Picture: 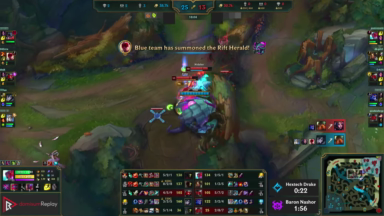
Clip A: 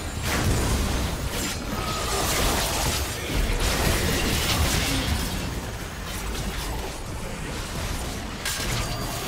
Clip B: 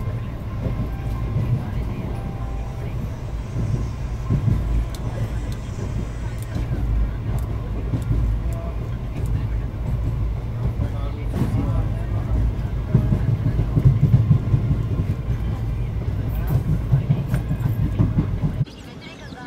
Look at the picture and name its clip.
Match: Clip A